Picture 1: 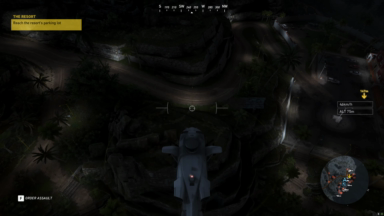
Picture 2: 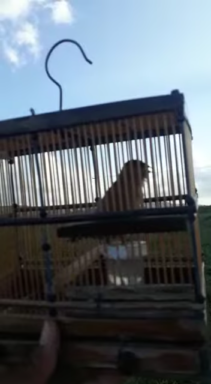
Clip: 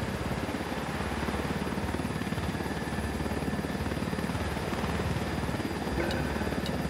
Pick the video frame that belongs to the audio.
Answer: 1